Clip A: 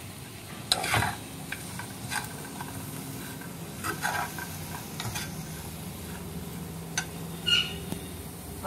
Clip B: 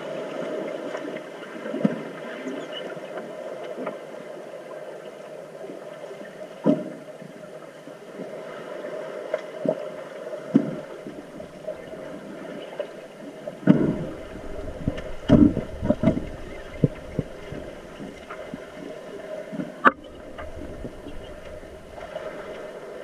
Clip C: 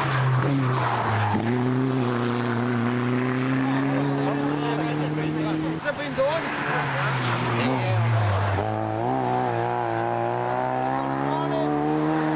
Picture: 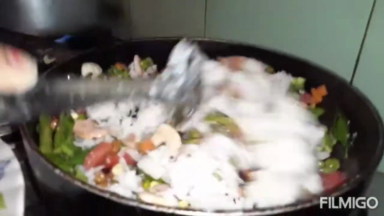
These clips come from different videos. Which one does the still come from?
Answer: A